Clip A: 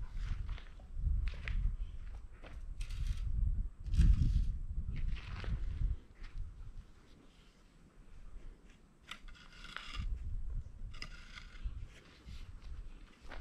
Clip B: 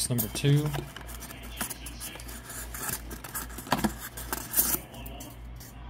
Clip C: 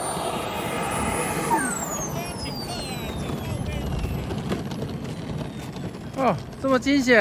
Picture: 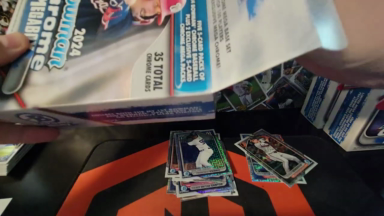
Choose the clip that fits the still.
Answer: B